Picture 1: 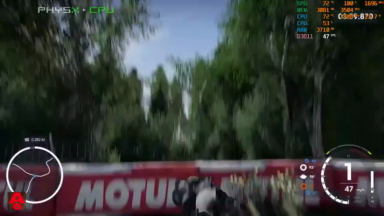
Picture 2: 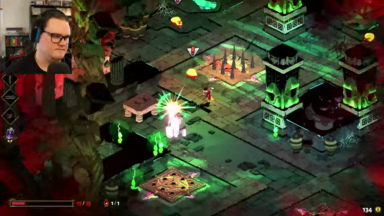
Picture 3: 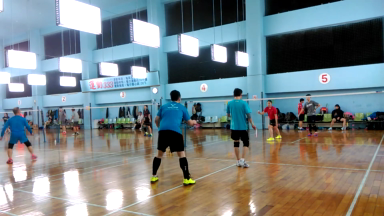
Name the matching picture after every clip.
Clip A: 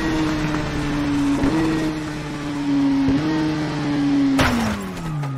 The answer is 1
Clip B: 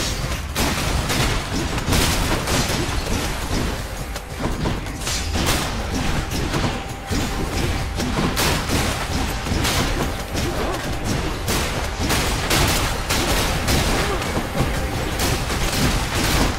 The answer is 2